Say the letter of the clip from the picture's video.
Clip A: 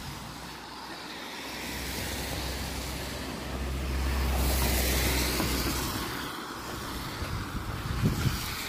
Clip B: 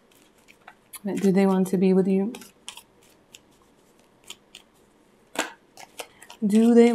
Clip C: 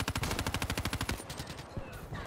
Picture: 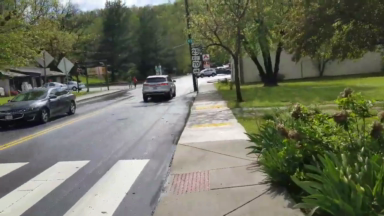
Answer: A